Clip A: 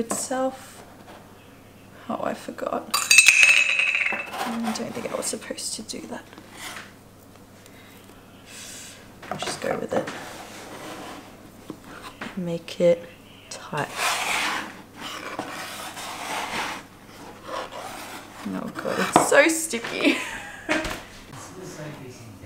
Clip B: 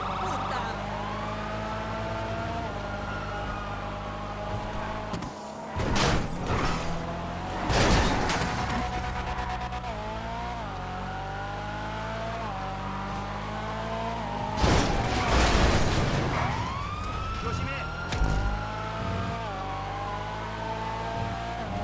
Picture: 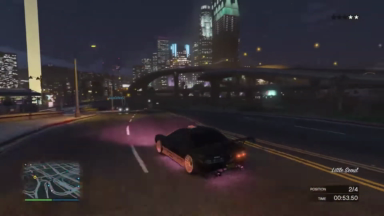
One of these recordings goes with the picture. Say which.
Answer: B